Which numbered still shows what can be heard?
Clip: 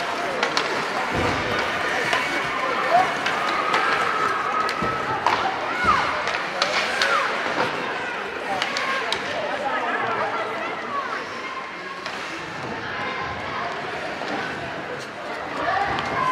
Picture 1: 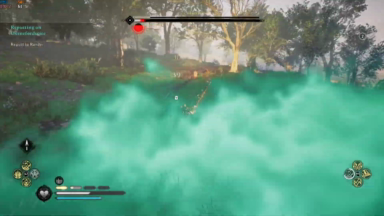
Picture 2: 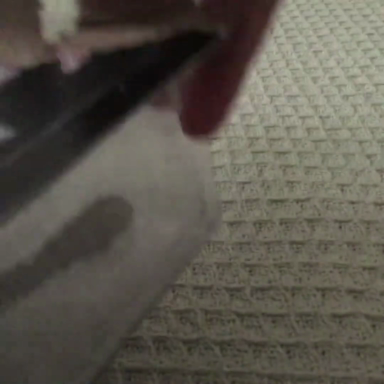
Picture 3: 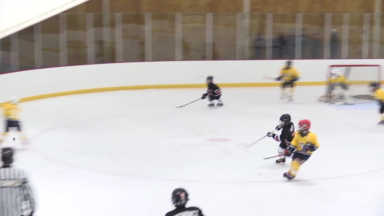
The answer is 3